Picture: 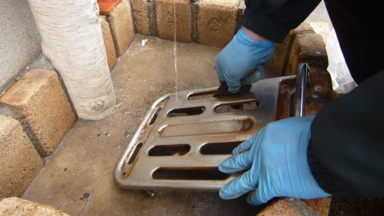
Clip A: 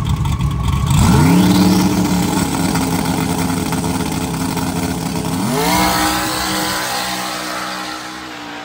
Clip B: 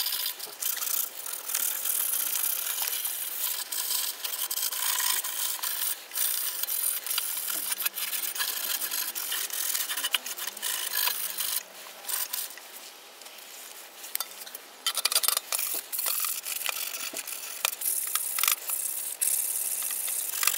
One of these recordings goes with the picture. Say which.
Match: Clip B